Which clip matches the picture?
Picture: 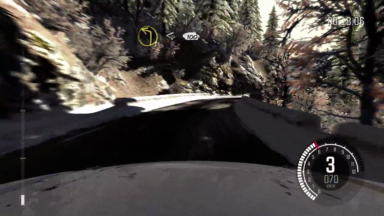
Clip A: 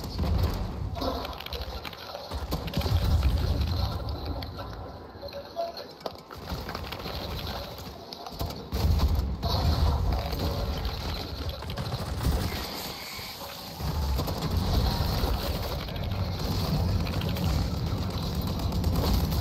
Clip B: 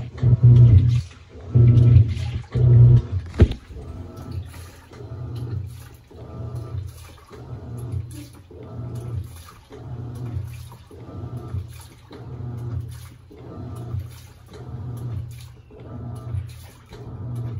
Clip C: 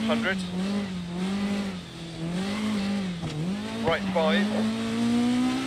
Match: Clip C